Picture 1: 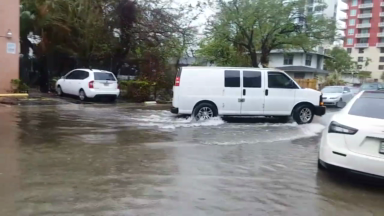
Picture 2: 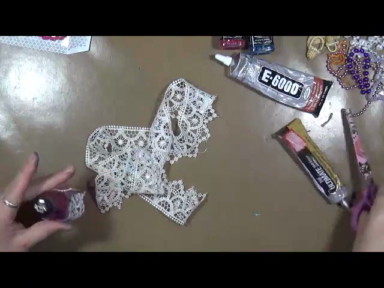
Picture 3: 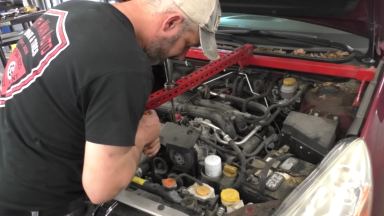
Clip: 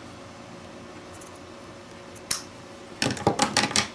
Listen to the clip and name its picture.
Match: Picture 2